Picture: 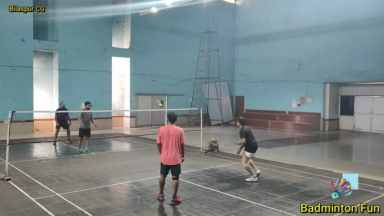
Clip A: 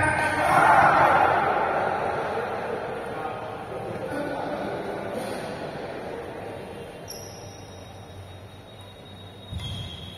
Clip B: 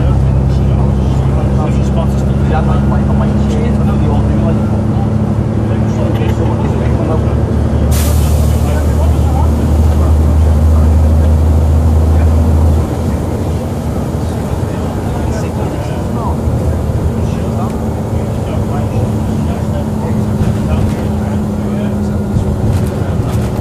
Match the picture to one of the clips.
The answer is A